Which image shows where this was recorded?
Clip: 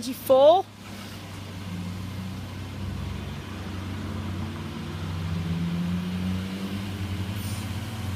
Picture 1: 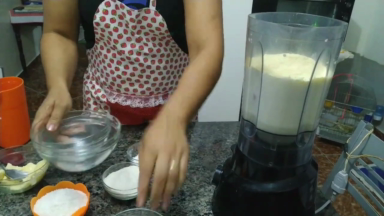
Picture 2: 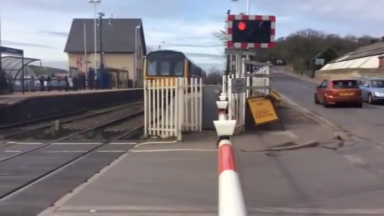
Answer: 2